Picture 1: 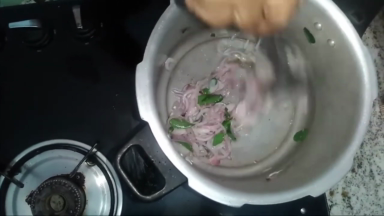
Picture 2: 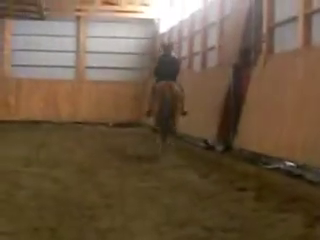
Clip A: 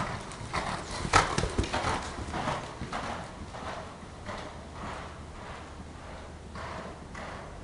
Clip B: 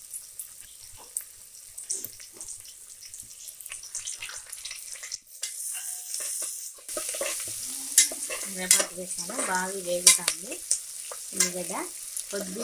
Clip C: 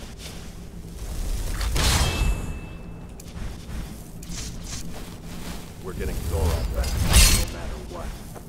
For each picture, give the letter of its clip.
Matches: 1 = B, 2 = A